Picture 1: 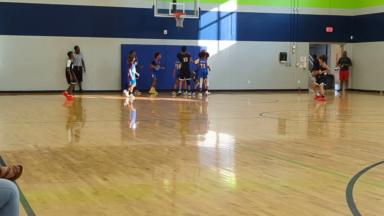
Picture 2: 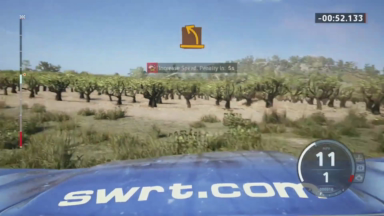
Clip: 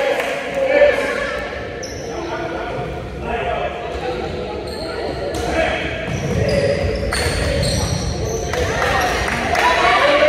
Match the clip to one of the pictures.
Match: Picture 1